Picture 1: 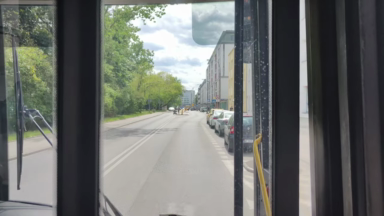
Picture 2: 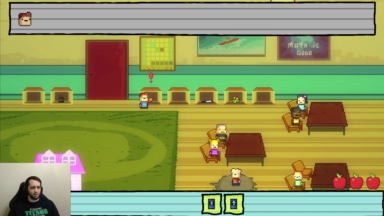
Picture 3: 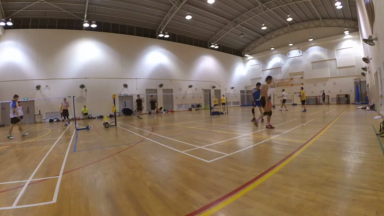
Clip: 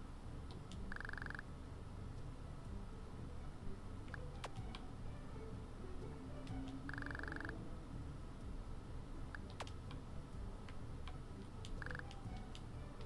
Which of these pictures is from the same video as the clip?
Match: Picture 2